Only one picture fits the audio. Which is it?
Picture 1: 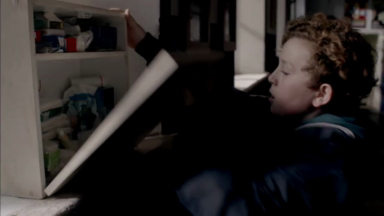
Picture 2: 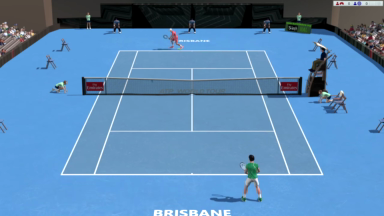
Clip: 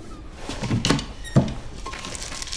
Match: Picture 1